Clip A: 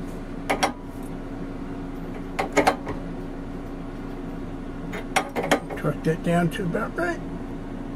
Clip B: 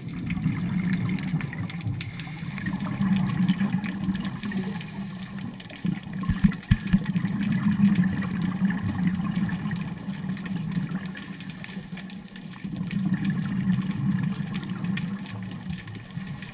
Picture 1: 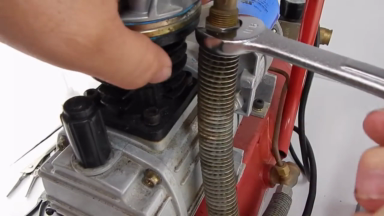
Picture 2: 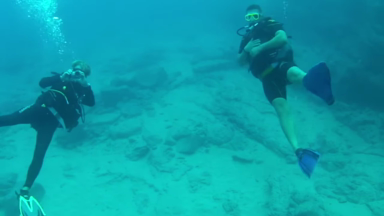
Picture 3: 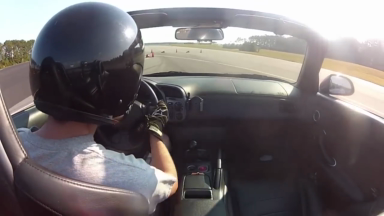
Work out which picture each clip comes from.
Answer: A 1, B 2